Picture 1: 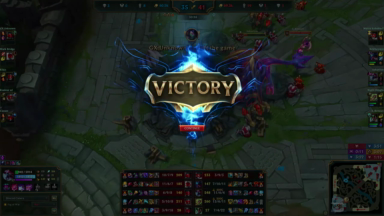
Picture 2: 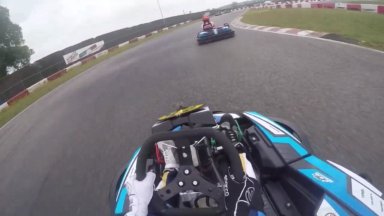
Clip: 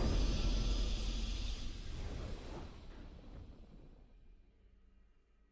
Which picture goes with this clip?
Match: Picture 1